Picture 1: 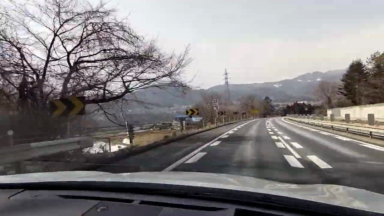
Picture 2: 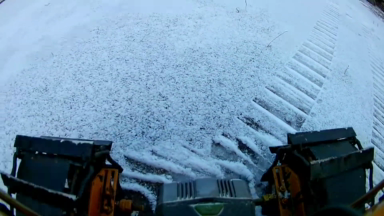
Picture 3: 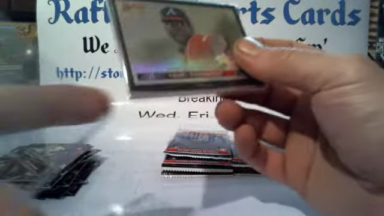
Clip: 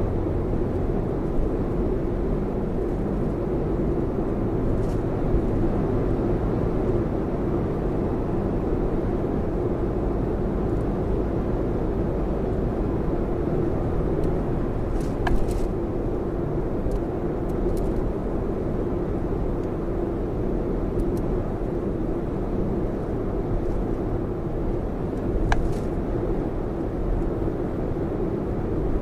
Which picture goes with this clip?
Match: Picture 1